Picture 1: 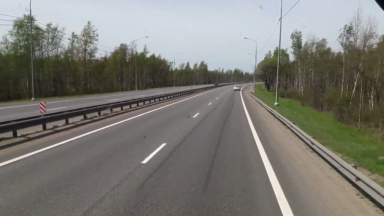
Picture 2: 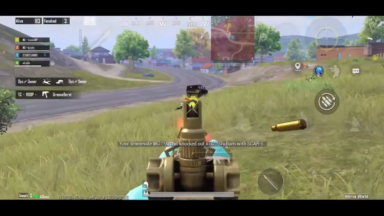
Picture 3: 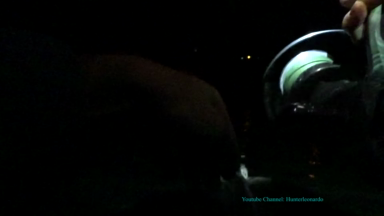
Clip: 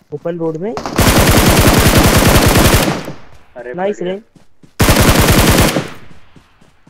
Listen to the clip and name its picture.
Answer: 2